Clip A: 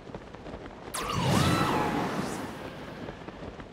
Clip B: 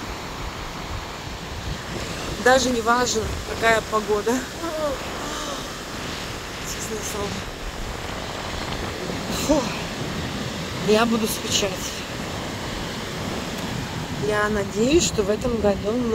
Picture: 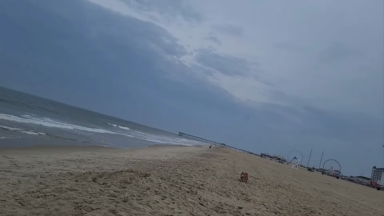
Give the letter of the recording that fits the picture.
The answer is B